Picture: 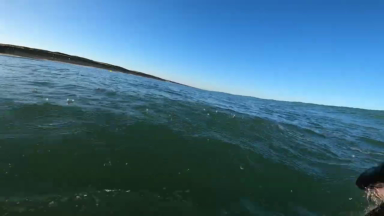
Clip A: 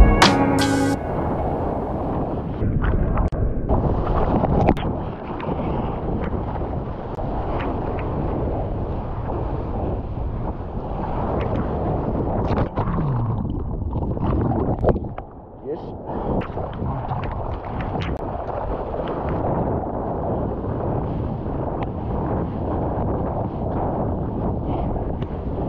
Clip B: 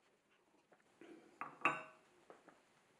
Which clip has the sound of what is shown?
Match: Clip A